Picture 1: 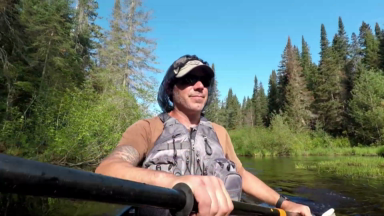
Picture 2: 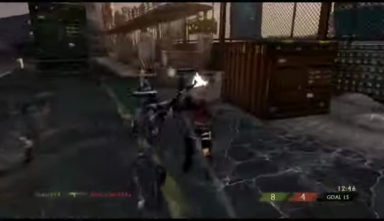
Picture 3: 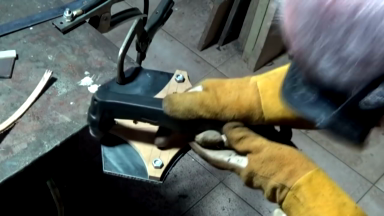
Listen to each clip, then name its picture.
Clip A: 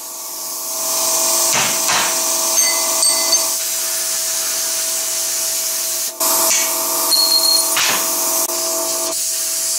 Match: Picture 3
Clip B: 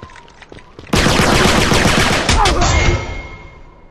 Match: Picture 2